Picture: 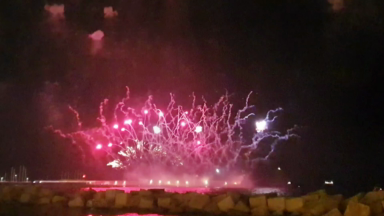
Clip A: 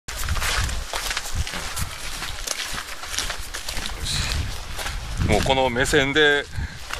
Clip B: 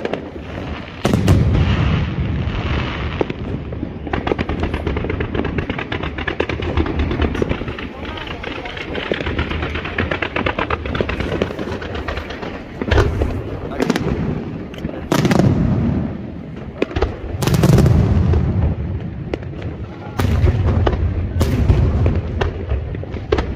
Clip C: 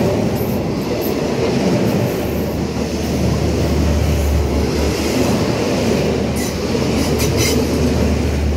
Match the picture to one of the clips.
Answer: B